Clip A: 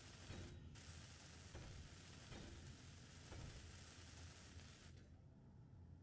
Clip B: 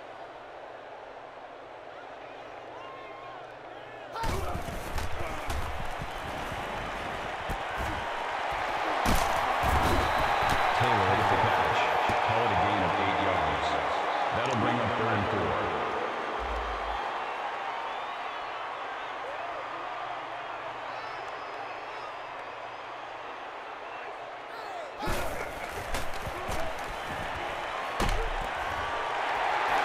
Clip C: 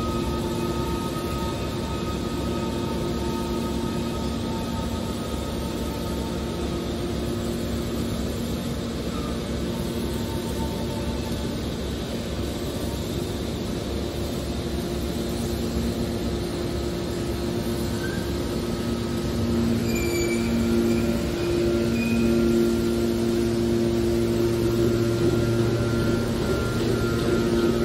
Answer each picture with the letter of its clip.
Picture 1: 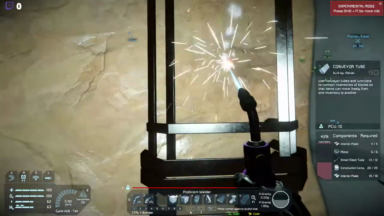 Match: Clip A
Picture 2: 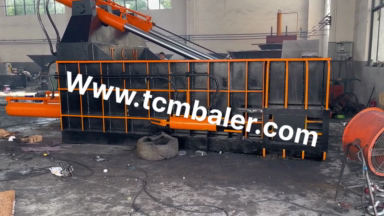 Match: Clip C